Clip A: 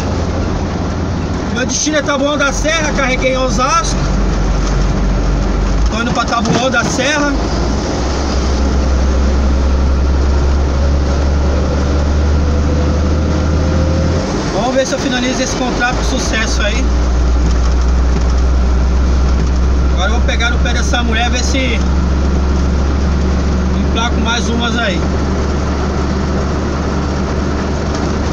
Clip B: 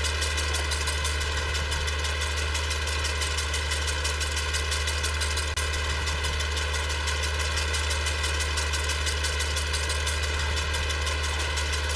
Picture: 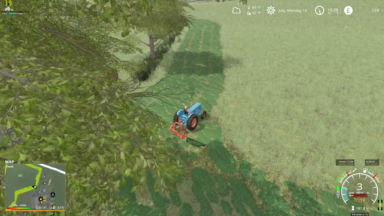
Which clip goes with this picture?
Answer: B